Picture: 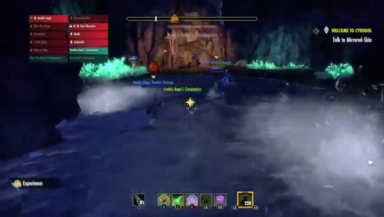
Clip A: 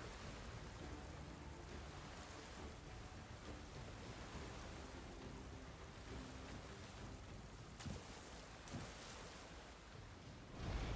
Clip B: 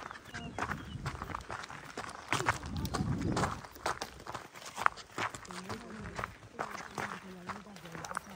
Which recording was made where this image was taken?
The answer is A